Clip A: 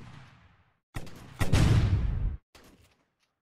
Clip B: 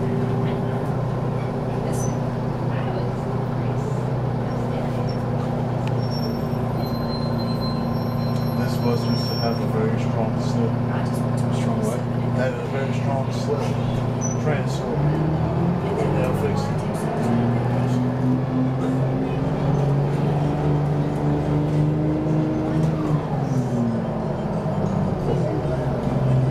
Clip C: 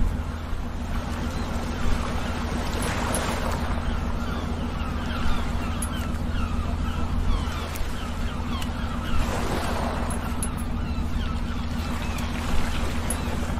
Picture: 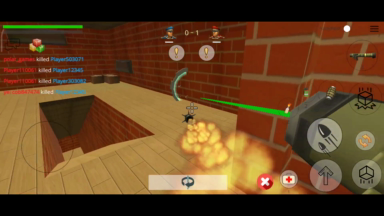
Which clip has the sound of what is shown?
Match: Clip A